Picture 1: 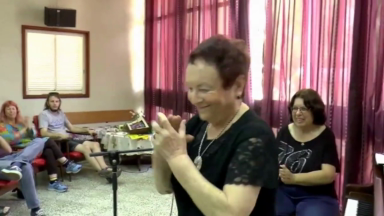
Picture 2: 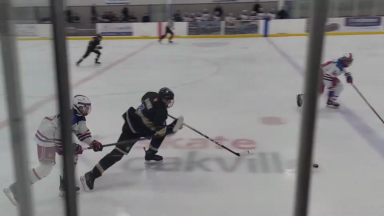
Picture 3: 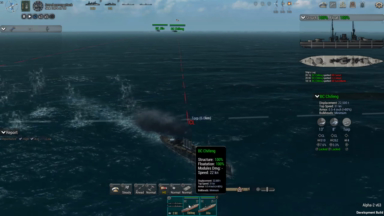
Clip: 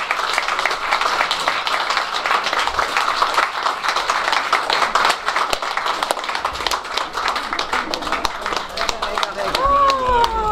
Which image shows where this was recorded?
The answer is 1